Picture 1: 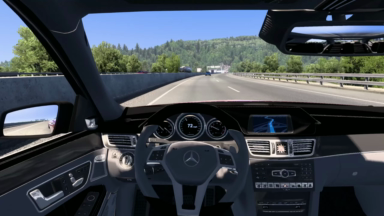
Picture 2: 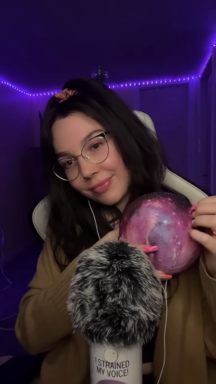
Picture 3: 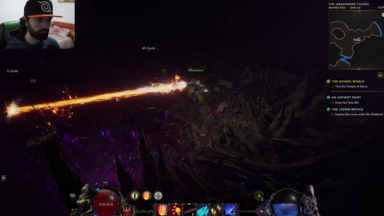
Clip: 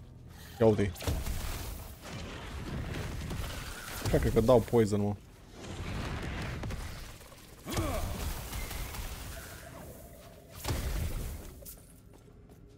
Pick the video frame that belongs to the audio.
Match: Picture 3